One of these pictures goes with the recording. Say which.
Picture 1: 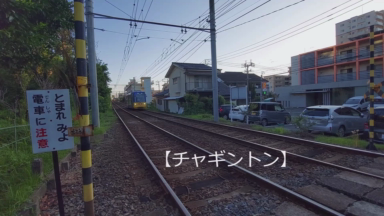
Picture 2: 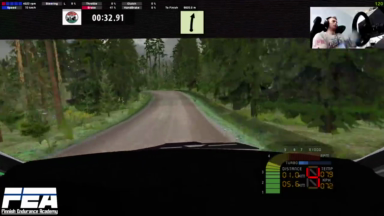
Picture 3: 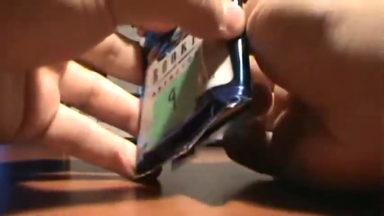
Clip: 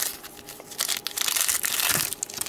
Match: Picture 3